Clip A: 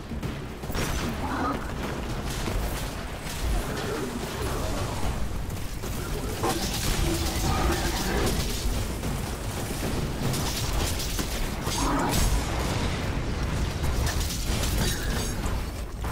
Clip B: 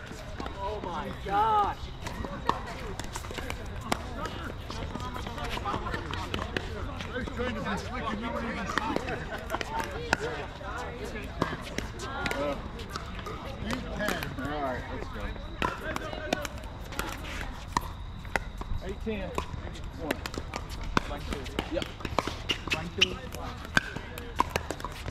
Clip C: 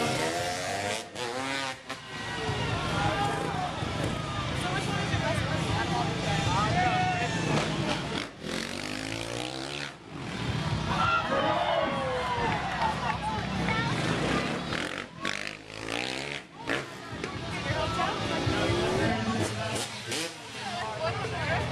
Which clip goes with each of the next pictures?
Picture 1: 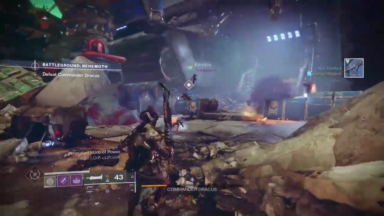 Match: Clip A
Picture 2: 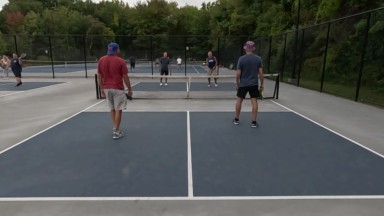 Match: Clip B